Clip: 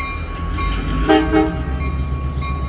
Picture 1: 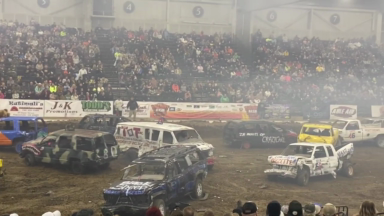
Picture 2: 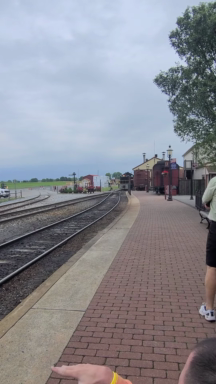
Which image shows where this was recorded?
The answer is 2